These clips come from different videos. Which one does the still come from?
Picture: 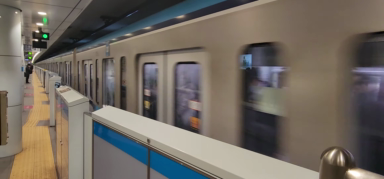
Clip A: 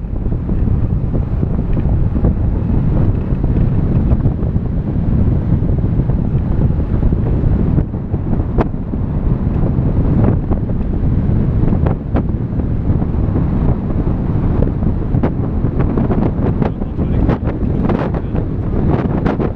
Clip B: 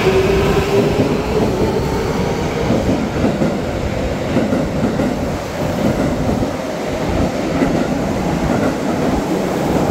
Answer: B